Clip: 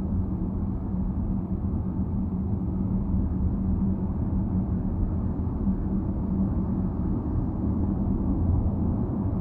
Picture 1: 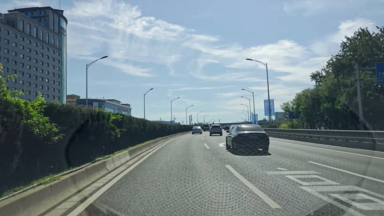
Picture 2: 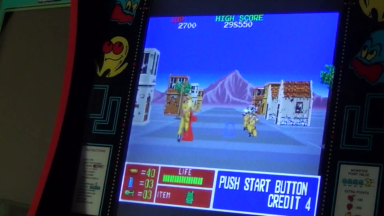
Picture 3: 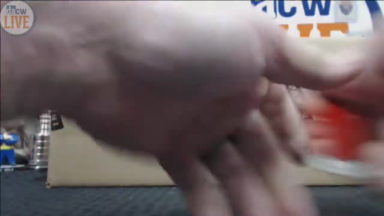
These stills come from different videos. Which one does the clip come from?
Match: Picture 1